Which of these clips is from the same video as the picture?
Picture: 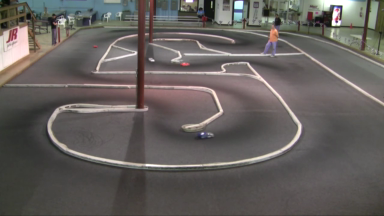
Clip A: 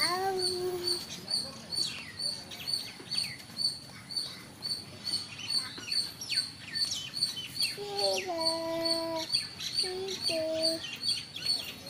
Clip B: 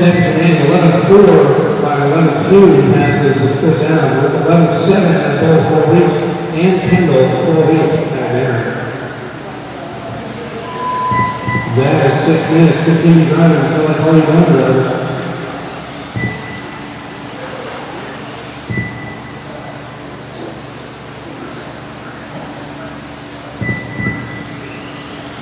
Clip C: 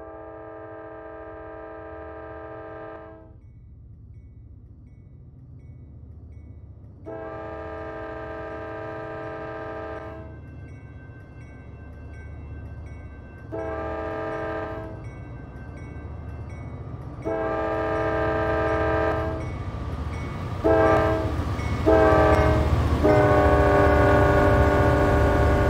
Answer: B